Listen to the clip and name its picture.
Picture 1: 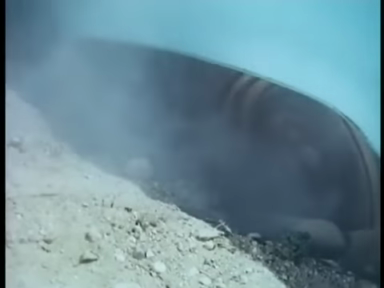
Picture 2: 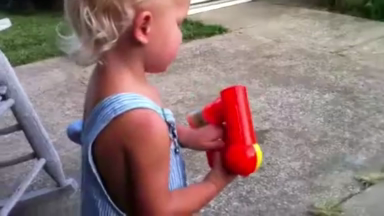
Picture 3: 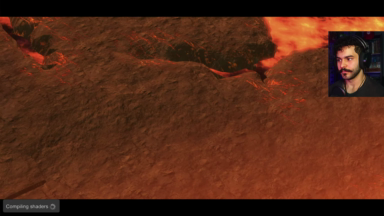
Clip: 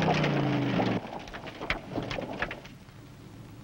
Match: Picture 1